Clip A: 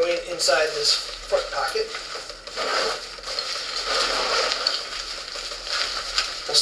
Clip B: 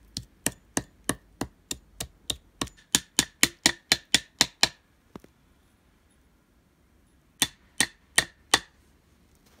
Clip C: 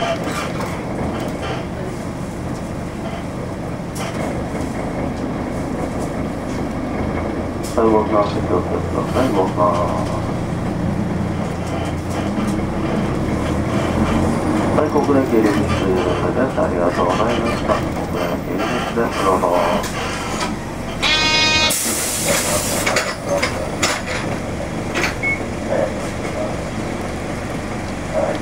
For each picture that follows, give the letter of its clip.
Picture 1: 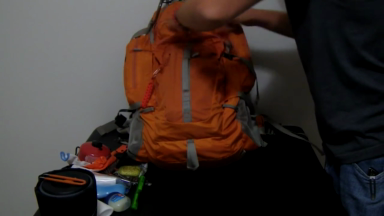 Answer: A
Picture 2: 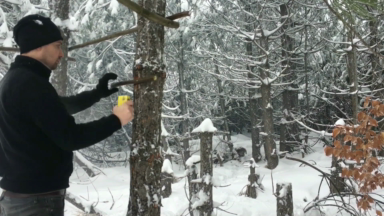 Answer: B